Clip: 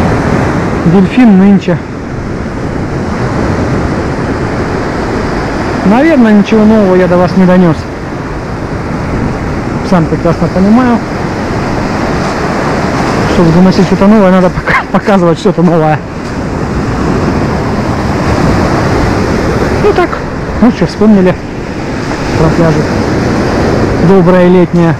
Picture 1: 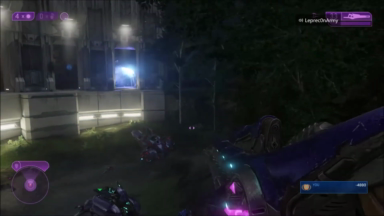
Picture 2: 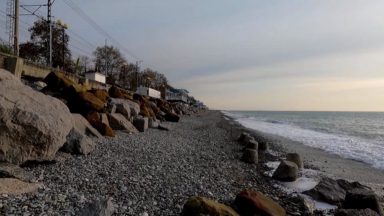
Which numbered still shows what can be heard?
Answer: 2